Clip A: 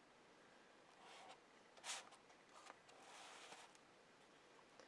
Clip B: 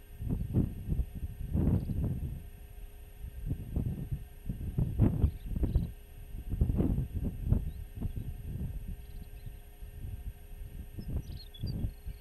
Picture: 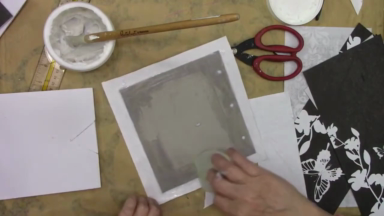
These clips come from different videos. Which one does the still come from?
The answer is A